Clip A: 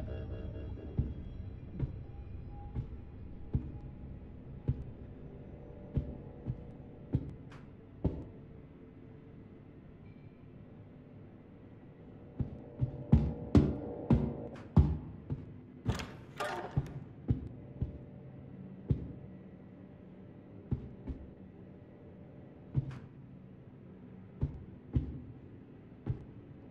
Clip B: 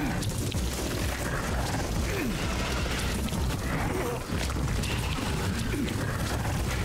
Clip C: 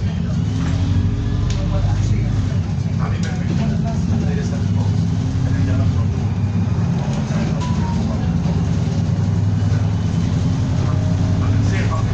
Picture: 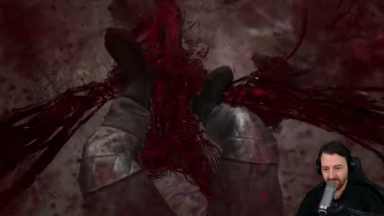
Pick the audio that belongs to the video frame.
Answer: B